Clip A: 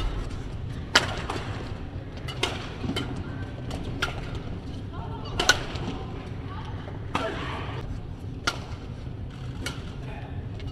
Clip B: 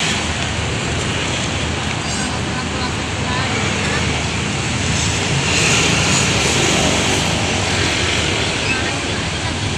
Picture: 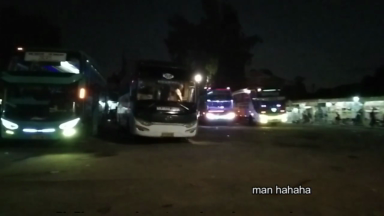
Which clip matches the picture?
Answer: B